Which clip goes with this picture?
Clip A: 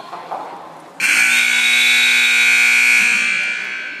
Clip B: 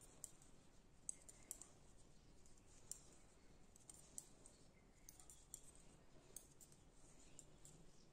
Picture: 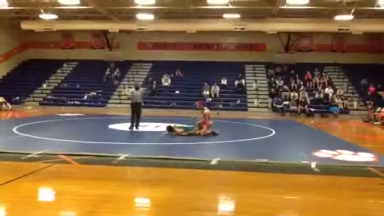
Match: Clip A